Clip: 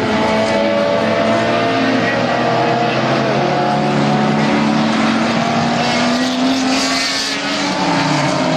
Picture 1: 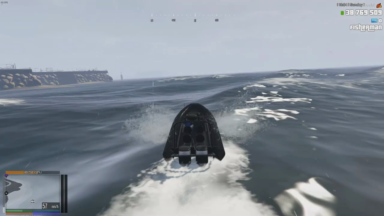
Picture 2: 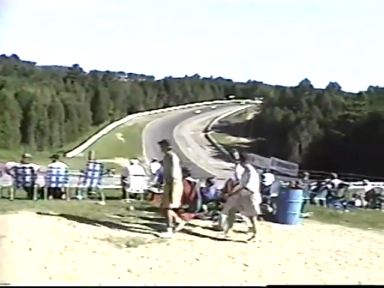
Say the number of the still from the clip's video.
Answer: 2